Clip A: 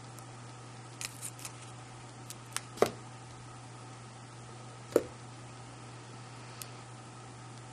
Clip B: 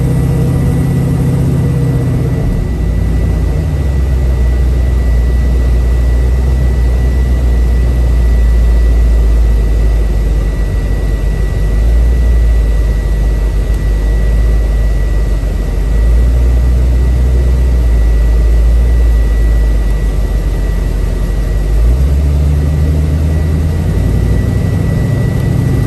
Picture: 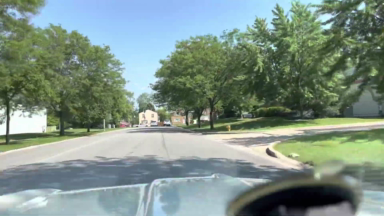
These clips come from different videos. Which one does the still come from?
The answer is B